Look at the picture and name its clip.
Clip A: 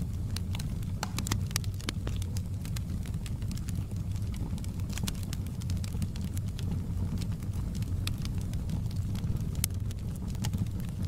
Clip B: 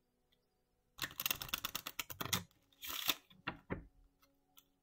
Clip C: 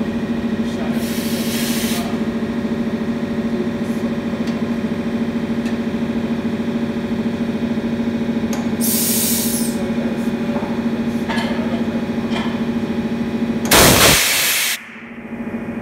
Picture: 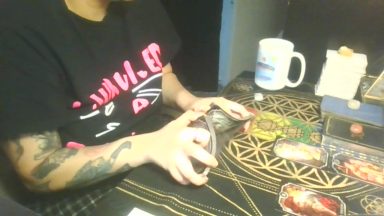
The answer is B